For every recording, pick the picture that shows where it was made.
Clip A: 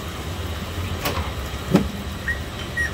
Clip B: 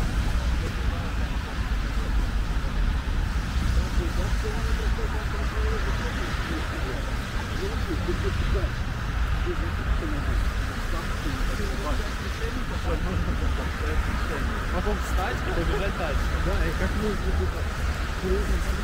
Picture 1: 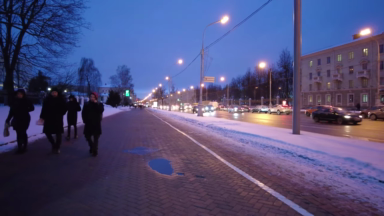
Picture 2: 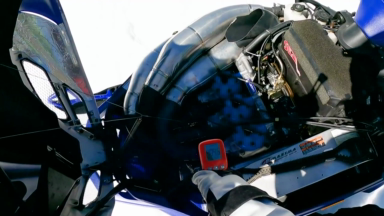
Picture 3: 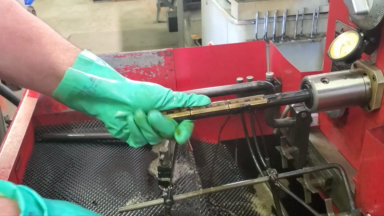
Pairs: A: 3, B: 1